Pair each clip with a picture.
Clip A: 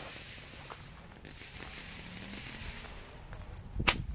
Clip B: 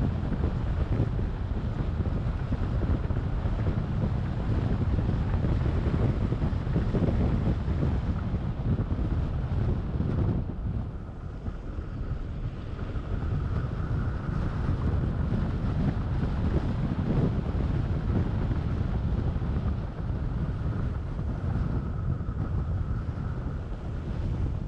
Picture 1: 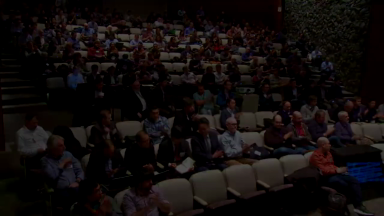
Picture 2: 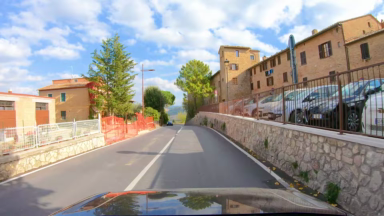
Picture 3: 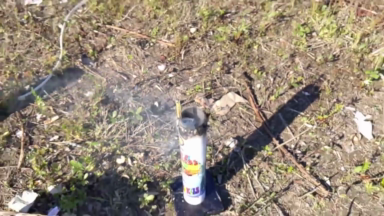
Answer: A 3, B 2